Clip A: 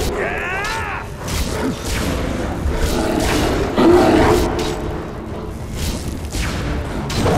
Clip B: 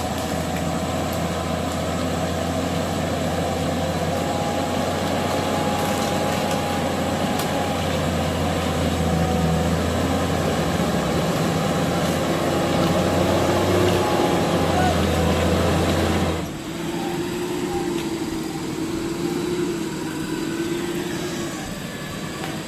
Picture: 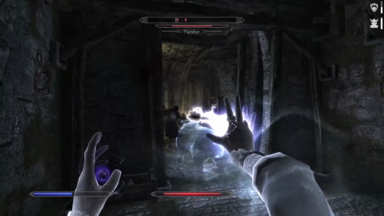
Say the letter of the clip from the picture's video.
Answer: A